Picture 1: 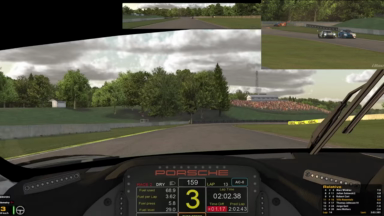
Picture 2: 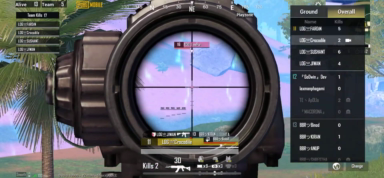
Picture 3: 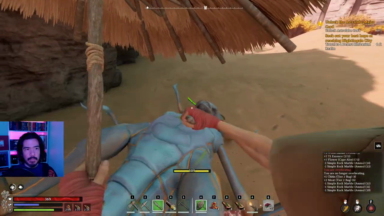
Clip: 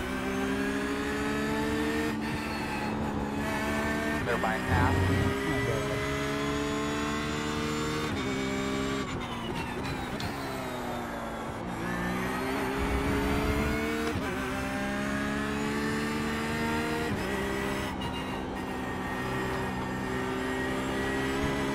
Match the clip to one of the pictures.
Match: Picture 1